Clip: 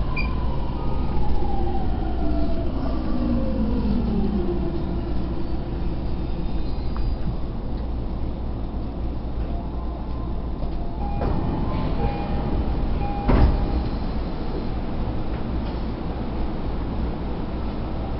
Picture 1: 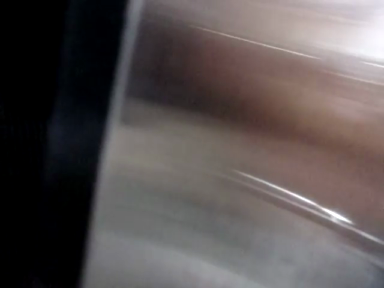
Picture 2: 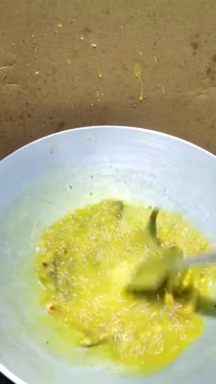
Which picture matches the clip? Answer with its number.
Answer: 1